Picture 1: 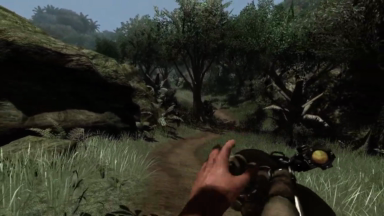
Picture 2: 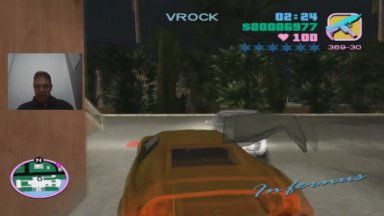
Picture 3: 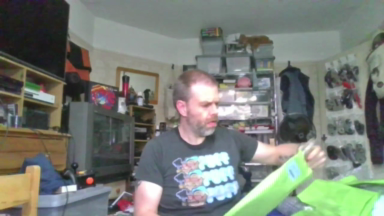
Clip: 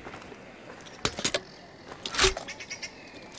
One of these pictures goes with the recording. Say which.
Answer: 1